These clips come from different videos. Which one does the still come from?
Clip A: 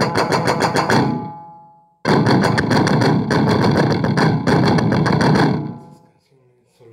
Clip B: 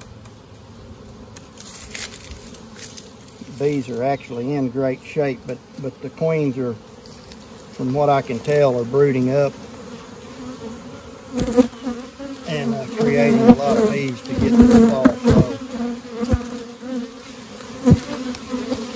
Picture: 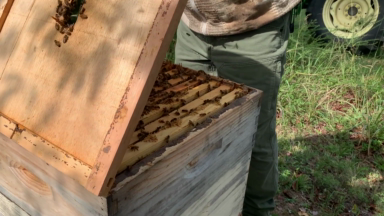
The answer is B